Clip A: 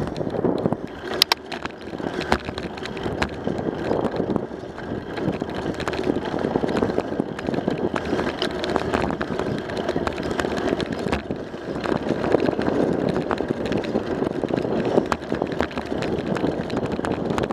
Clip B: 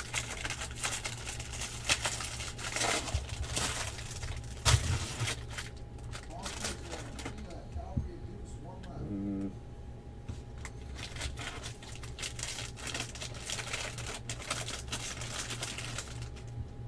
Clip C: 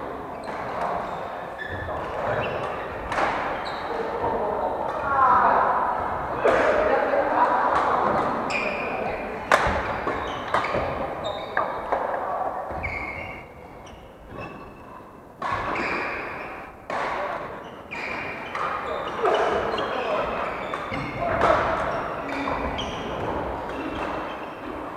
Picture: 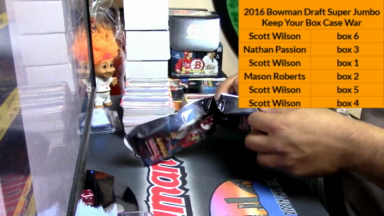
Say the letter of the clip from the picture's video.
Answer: B